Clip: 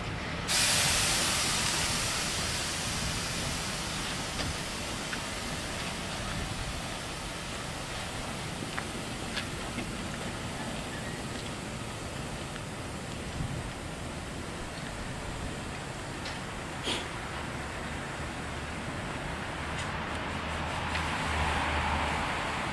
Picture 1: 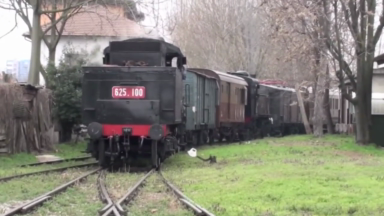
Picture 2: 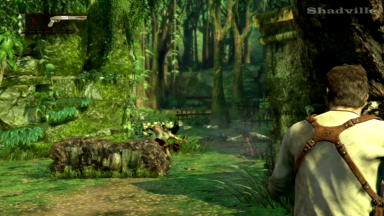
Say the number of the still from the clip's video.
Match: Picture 1